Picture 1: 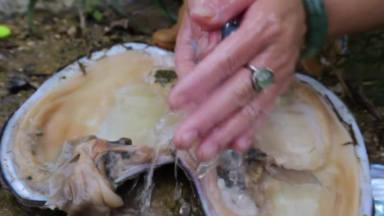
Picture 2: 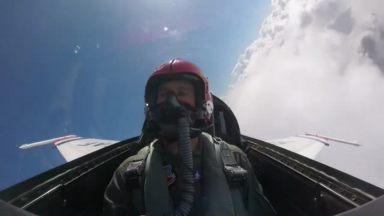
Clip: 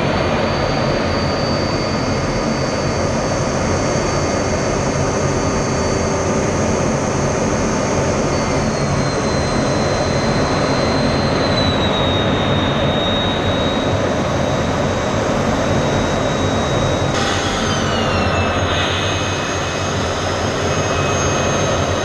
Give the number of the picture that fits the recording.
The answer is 2